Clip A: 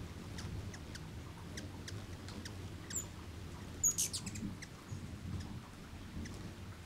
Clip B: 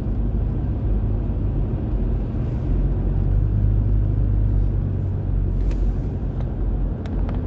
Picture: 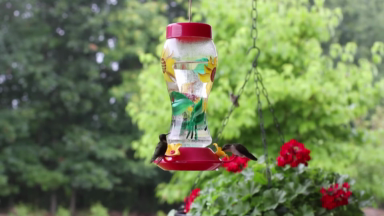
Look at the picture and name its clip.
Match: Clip A